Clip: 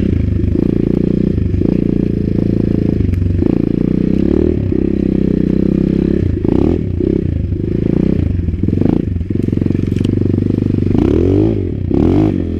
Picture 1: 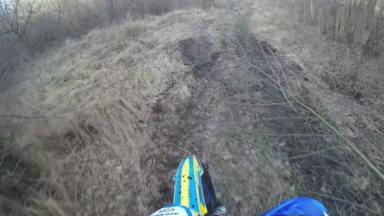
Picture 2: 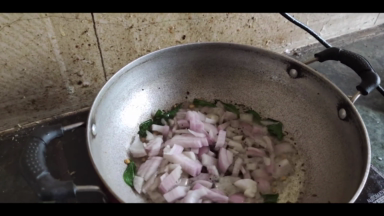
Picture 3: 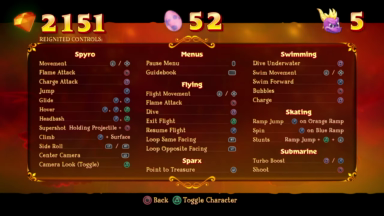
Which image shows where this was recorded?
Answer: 1